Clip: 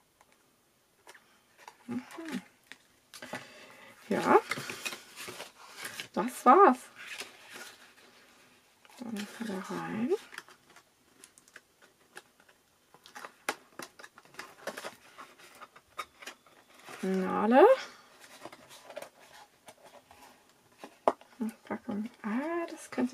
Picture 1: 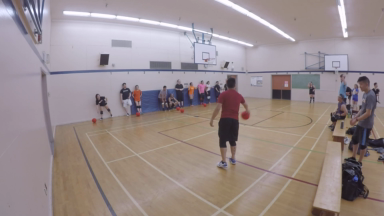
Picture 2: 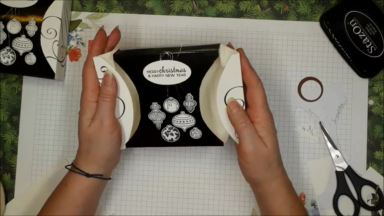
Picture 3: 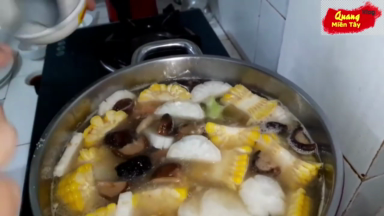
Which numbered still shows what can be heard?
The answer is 2